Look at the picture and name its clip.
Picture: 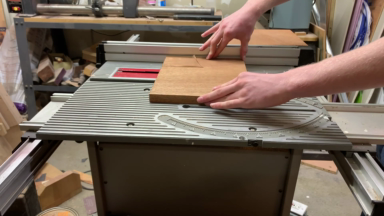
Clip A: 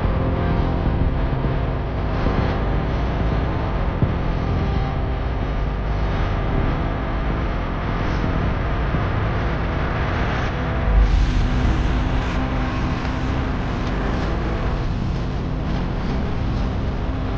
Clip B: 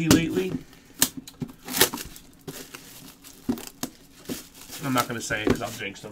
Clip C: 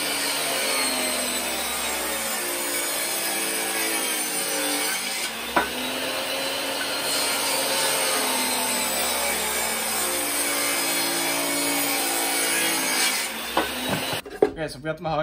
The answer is C